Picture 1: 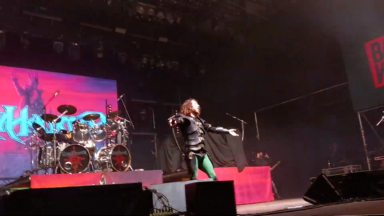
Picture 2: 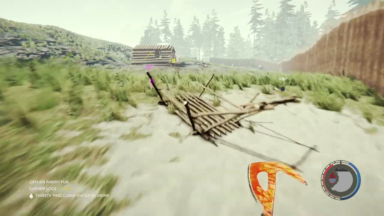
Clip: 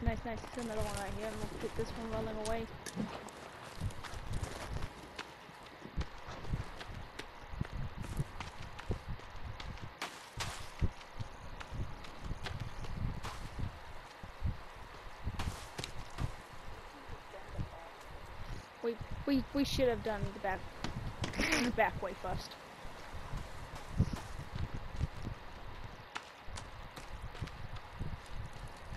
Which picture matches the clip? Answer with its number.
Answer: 2